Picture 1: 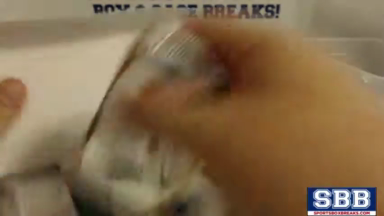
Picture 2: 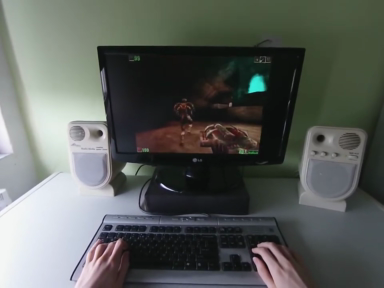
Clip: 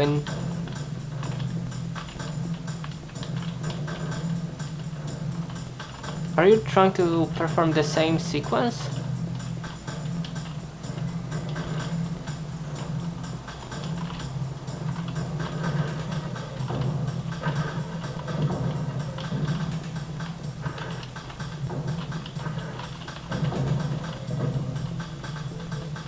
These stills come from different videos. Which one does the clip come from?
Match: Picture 2